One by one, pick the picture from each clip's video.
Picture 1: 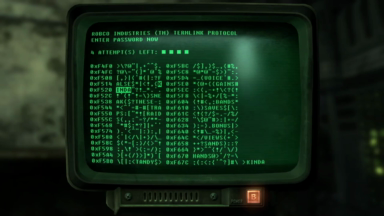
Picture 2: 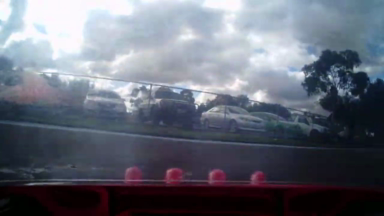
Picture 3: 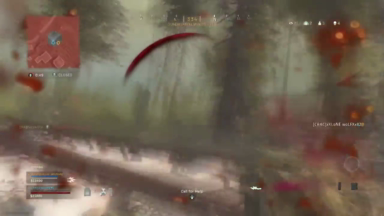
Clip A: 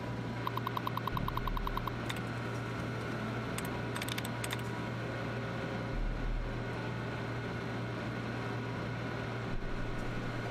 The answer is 1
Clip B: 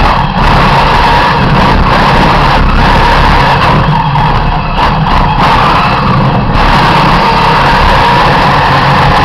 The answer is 2